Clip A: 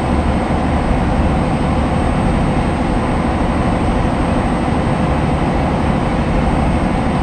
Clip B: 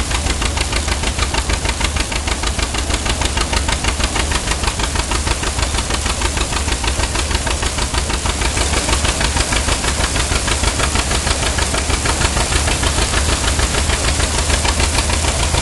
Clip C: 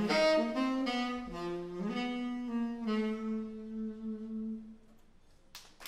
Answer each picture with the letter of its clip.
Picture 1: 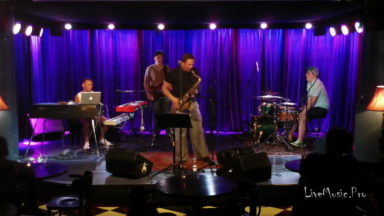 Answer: C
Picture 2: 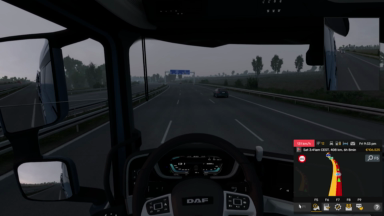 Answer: A